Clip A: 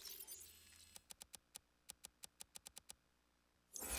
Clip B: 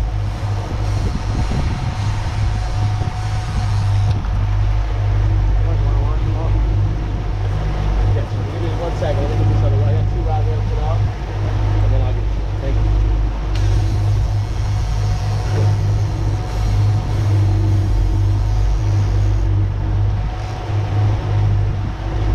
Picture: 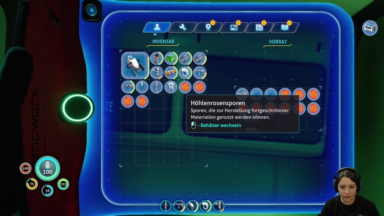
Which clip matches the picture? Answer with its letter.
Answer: A